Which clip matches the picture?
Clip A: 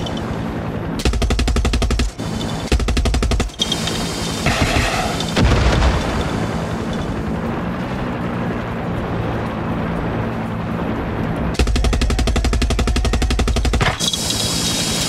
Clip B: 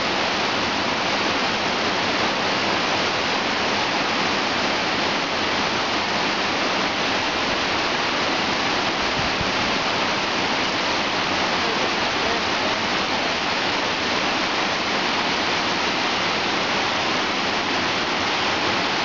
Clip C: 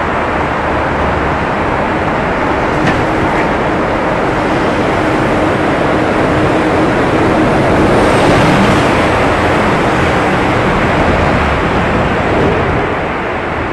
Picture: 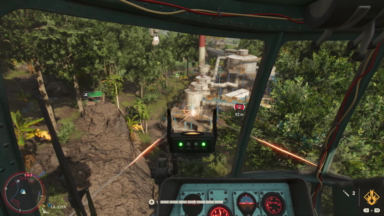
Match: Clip A